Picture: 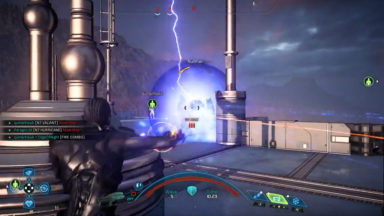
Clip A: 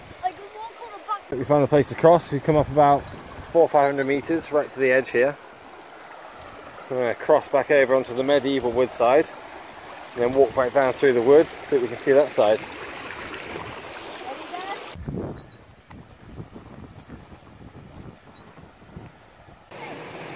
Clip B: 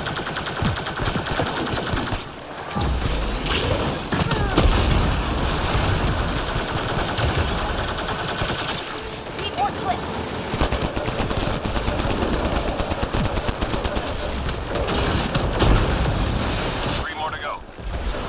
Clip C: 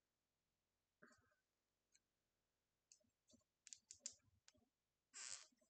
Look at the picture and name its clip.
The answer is B